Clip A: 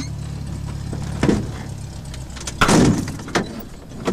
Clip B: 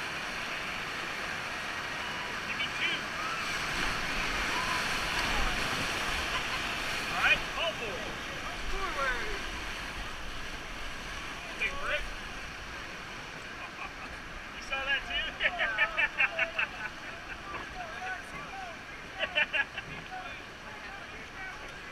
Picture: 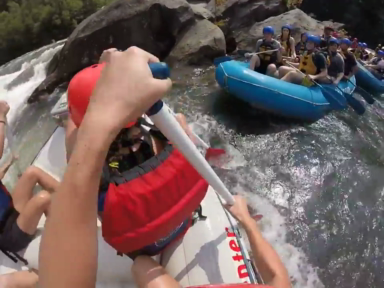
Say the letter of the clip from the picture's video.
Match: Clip B